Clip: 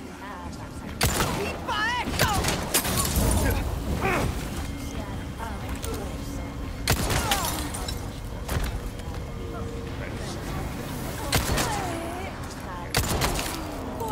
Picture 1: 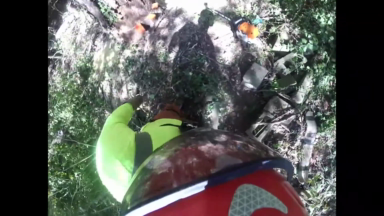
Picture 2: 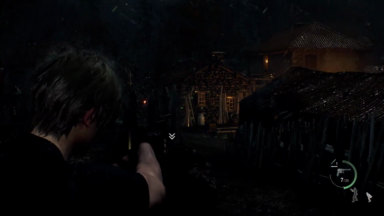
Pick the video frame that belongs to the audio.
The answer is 2